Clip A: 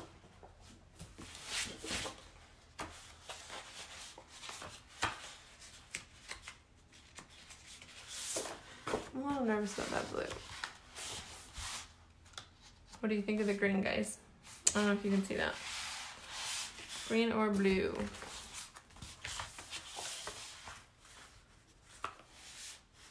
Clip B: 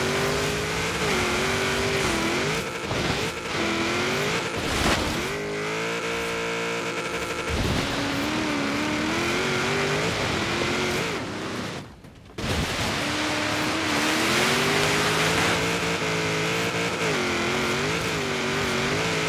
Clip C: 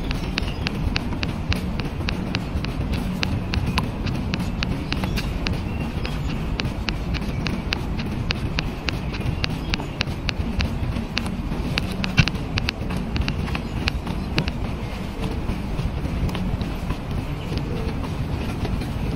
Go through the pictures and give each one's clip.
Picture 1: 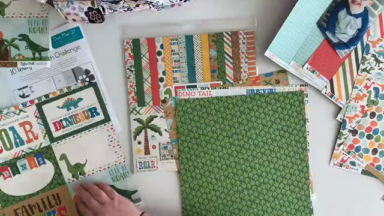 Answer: A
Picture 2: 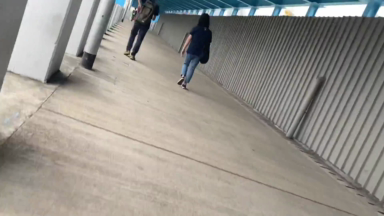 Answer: C